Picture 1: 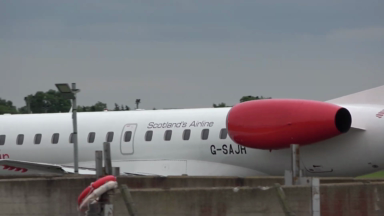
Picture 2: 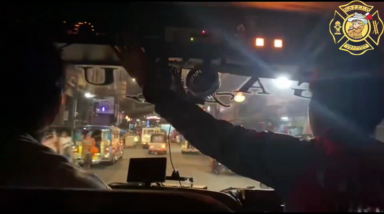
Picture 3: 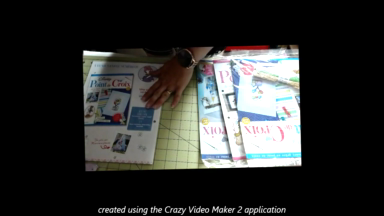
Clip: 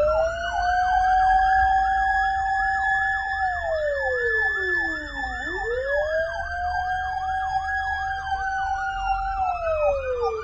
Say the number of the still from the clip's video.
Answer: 2